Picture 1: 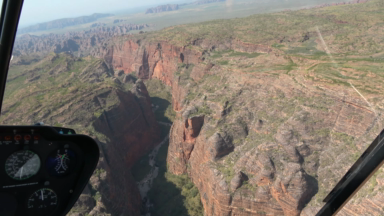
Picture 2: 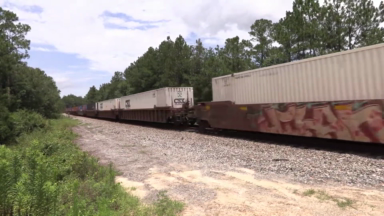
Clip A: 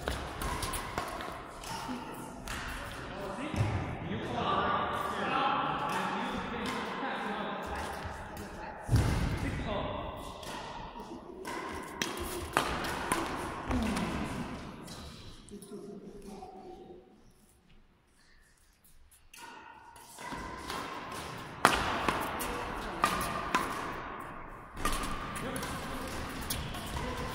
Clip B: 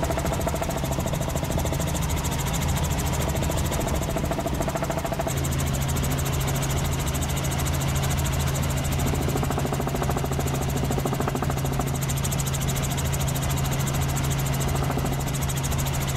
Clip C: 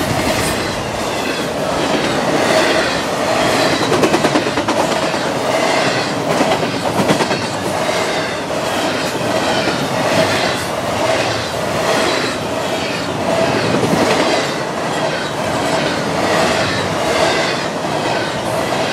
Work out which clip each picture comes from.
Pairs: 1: B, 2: C